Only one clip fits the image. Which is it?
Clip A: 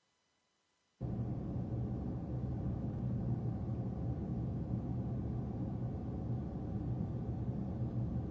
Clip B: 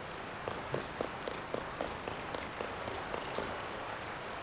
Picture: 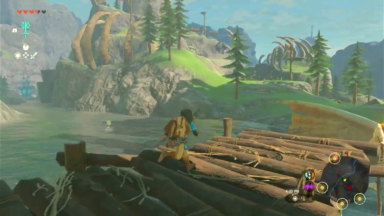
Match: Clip B